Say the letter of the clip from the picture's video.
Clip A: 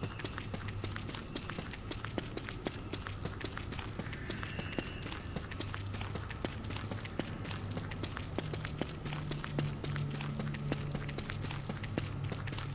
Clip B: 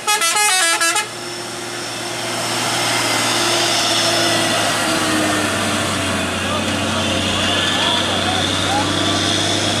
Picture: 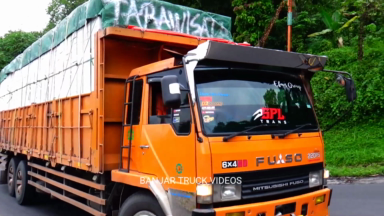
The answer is B